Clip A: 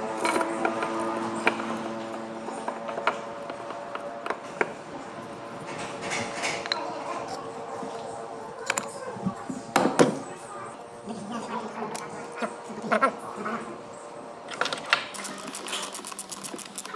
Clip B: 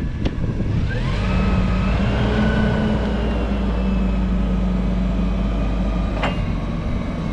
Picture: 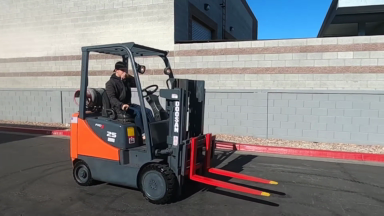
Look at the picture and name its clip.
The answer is B